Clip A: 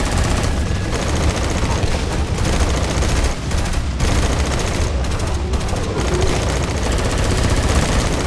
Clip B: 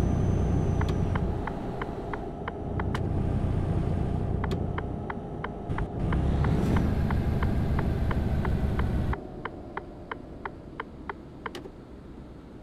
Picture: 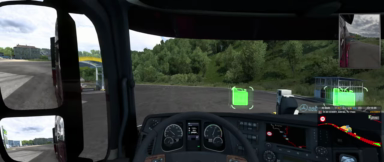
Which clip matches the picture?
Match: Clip B